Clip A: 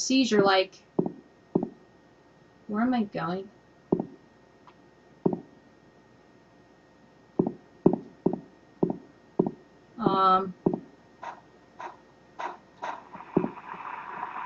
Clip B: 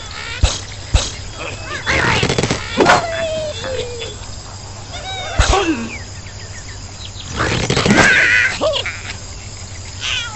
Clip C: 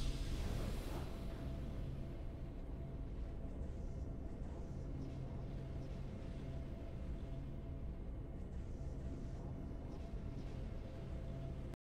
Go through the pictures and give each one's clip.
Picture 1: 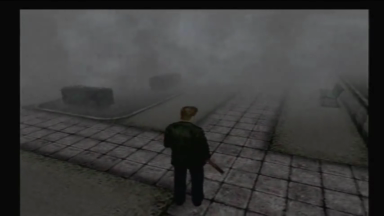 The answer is A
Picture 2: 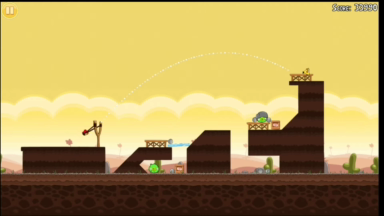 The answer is B